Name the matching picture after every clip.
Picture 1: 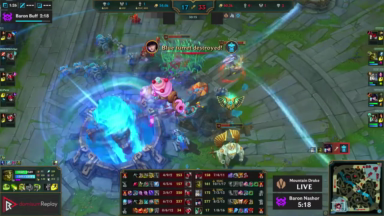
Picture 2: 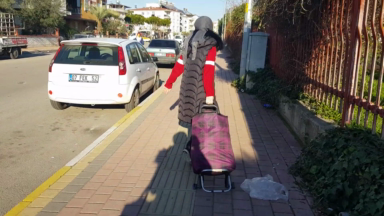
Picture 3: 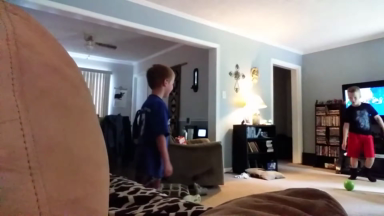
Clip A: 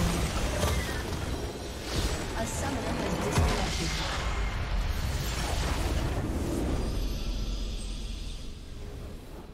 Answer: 1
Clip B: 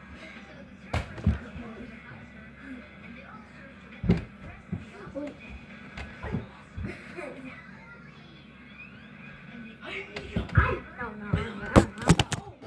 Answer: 3